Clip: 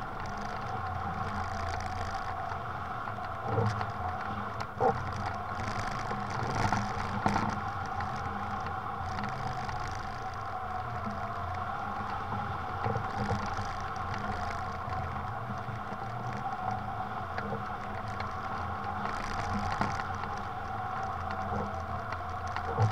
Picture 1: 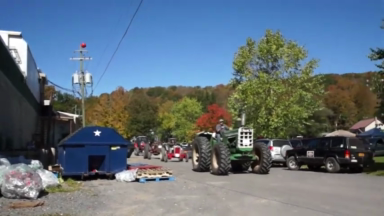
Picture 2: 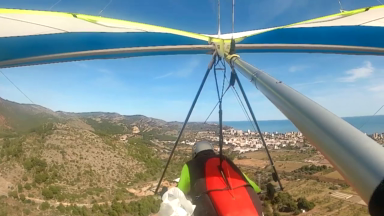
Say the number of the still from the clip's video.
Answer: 2